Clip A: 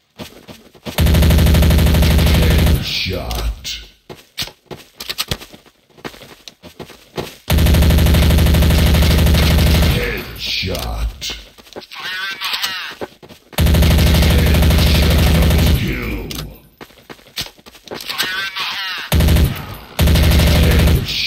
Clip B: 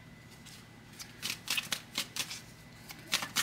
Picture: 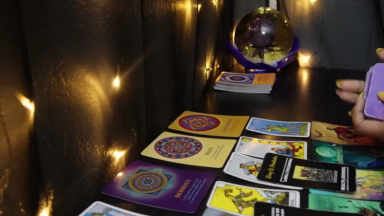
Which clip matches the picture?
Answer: B